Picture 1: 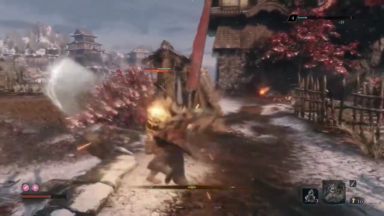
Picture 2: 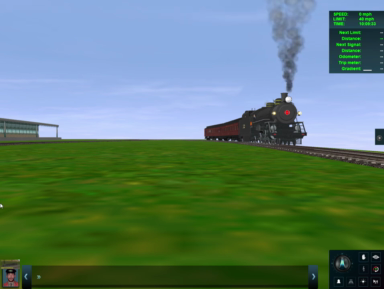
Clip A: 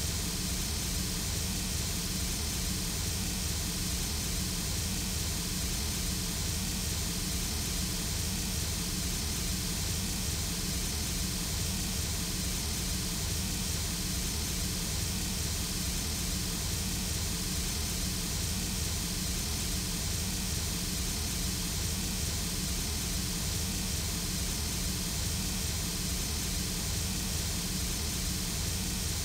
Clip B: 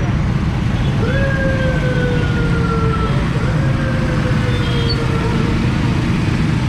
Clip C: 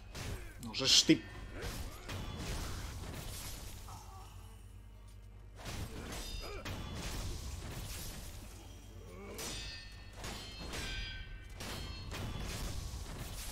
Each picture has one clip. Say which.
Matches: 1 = C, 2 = A